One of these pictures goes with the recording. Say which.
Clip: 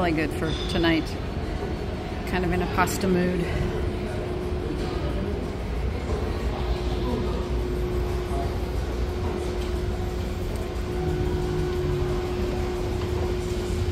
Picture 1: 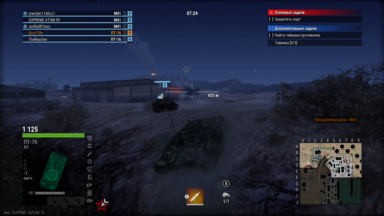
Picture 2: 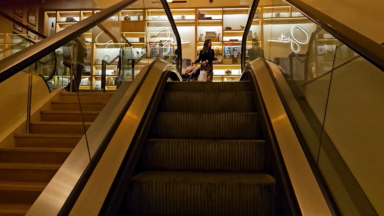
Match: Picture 2